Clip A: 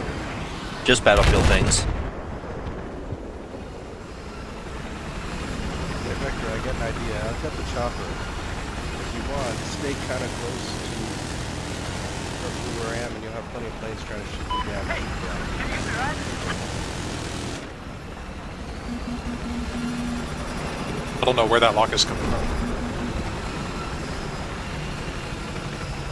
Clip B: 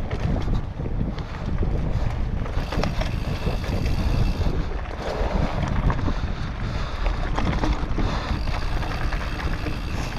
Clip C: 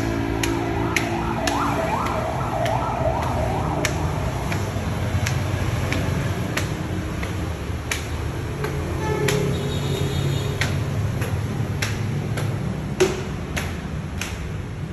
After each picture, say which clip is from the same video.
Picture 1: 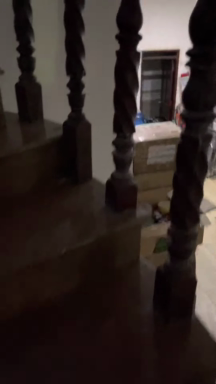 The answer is C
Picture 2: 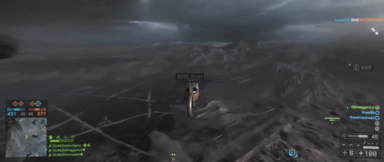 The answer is A